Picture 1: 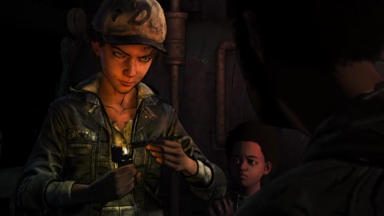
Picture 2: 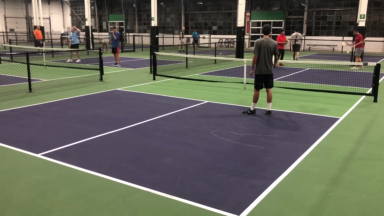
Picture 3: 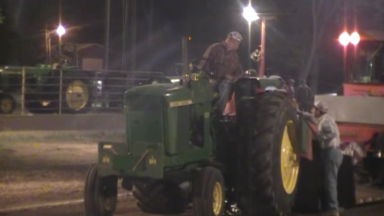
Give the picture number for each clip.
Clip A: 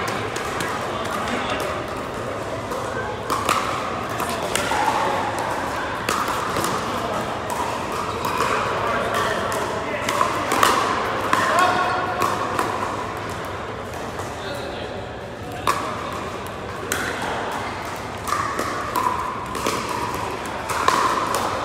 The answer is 2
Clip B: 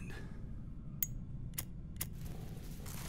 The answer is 1